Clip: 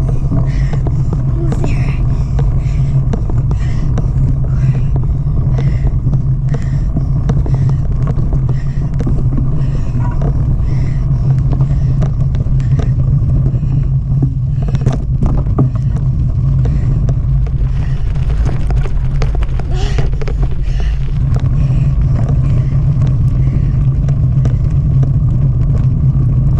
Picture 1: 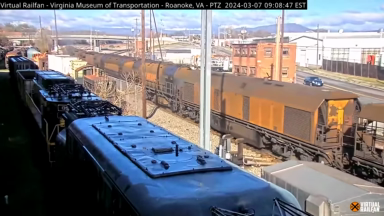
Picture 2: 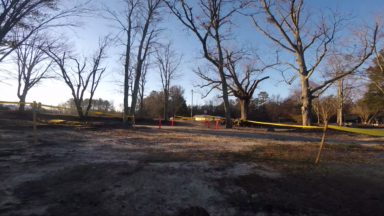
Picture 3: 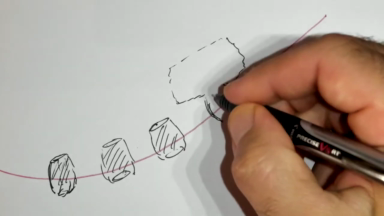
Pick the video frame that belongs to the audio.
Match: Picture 2